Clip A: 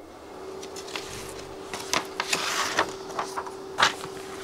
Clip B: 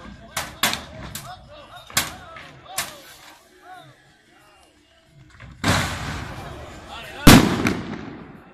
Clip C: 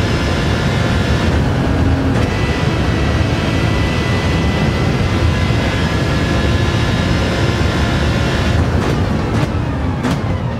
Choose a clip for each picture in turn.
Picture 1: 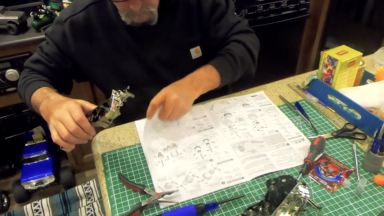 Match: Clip A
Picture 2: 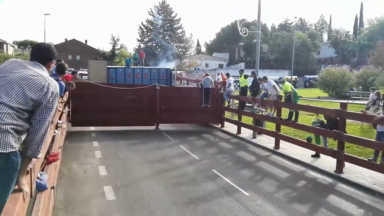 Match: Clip B